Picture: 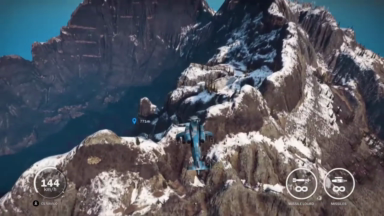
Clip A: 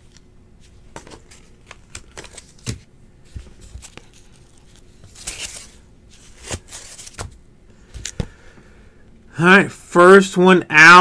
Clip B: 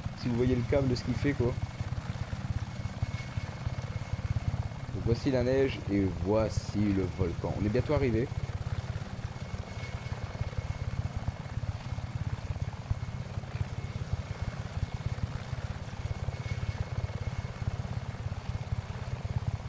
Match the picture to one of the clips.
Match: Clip B